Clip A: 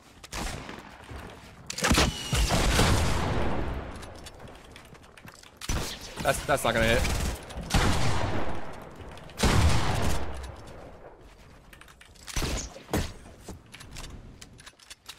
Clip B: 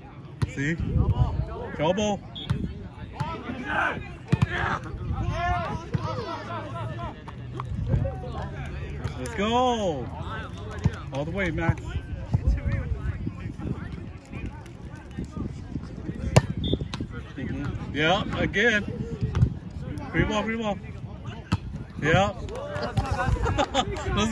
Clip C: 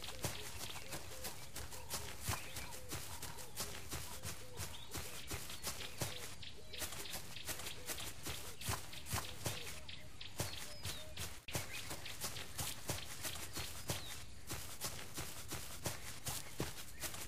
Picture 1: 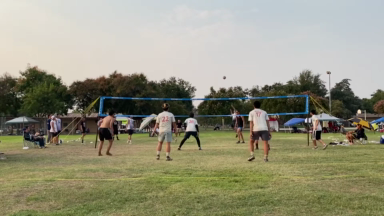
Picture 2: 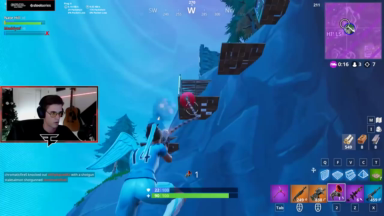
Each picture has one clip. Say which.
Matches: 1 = B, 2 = A